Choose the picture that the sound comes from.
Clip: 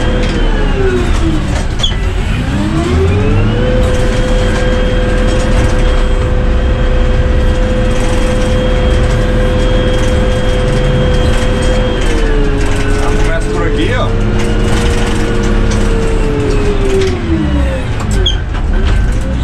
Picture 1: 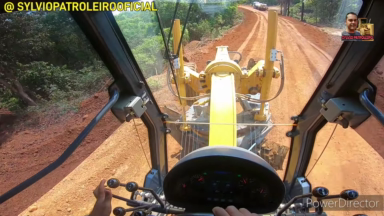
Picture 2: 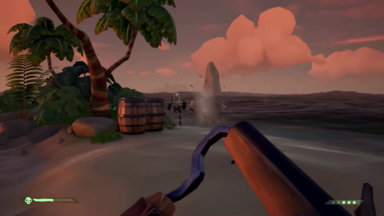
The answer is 1